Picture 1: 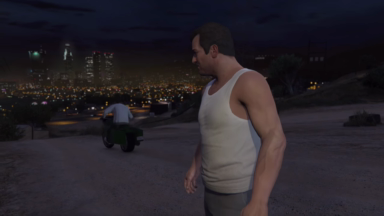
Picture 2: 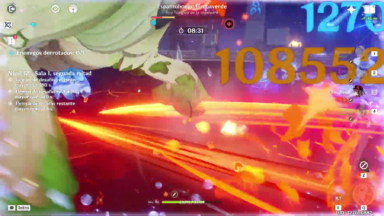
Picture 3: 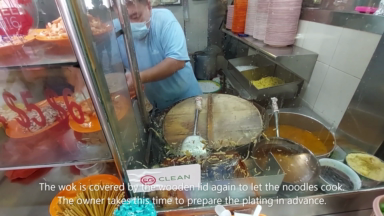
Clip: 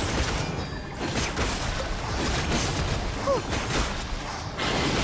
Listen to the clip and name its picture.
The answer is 2